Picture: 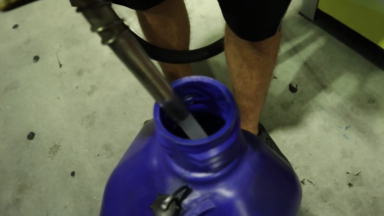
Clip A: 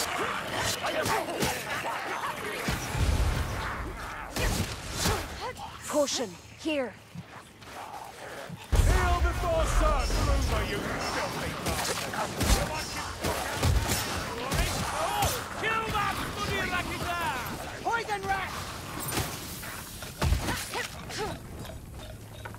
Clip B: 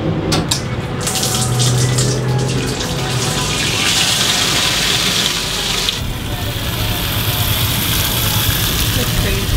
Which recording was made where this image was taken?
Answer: B